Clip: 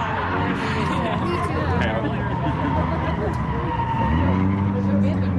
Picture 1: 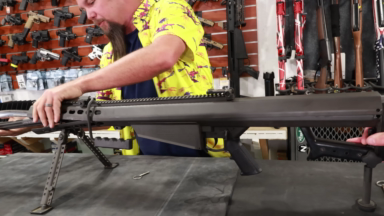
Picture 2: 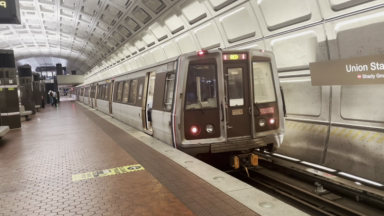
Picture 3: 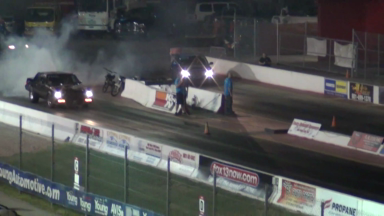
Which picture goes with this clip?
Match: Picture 3